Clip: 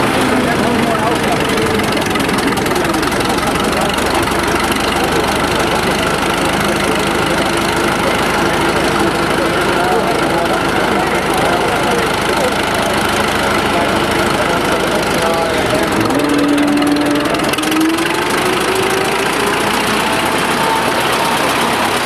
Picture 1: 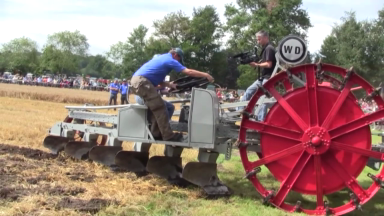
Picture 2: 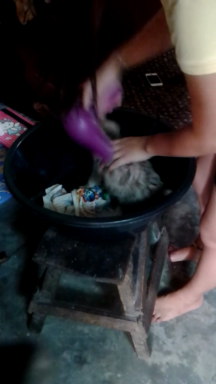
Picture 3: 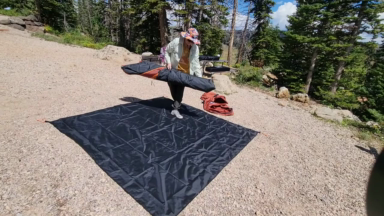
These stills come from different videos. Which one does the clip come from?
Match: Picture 1